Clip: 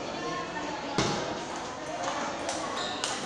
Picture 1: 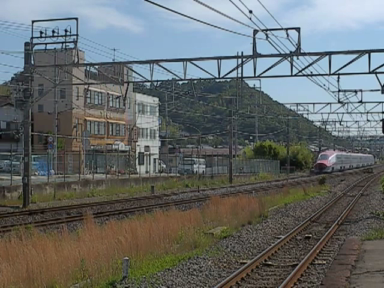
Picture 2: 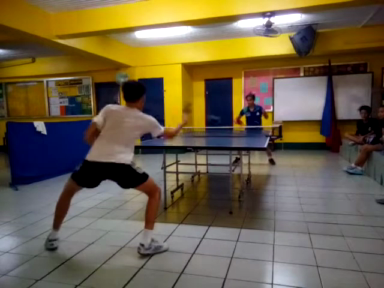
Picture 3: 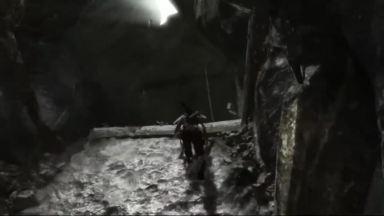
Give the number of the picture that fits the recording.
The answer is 2